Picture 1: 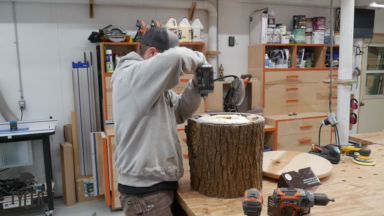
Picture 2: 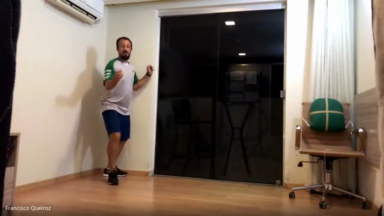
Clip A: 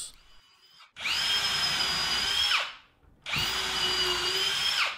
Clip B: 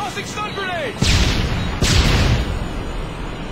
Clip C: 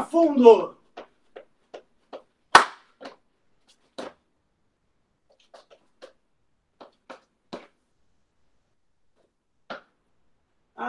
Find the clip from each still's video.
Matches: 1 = A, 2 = C